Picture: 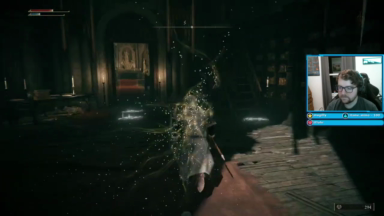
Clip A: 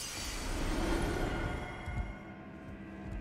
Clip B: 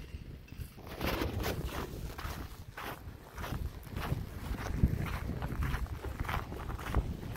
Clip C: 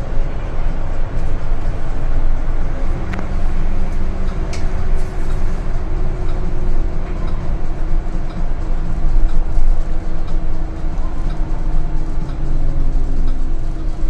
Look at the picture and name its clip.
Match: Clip A